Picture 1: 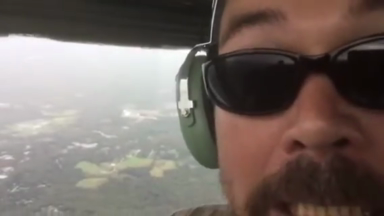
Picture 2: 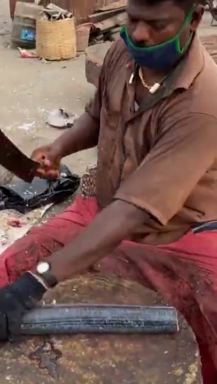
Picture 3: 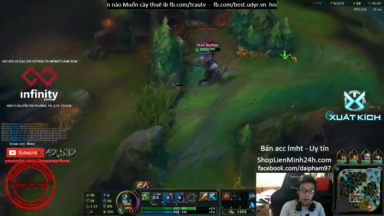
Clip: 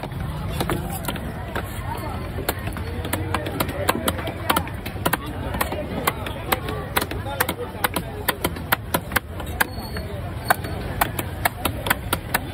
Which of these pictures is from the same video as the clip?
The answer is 2